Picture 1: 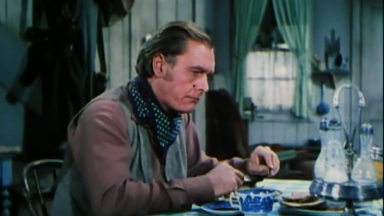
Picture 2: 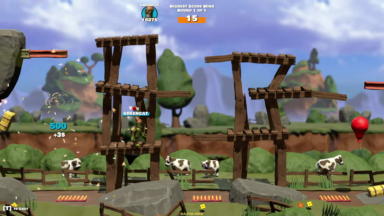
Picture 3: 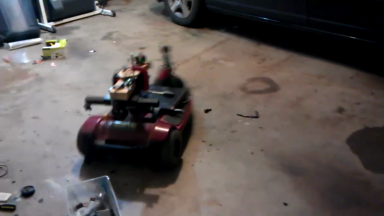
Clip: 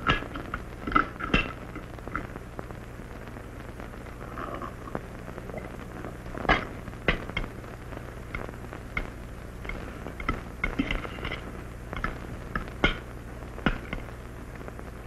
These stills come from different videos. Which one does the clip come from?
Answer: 1